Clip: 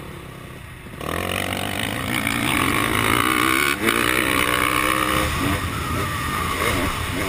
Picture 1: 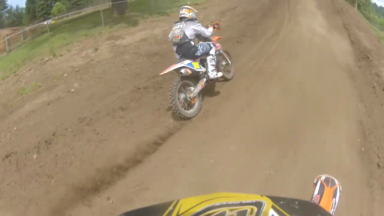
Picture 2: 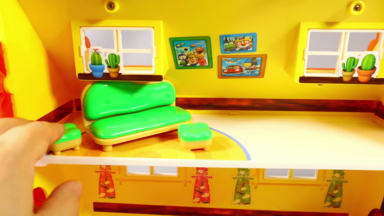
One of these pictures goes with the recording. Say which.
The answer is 1